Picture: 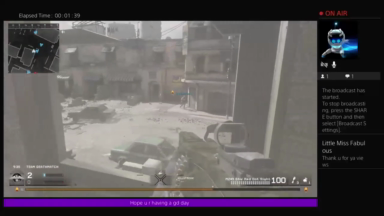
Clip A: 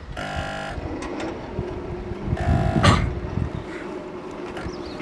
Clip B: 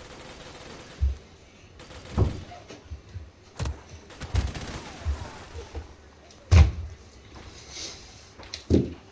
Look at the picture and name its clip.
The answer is B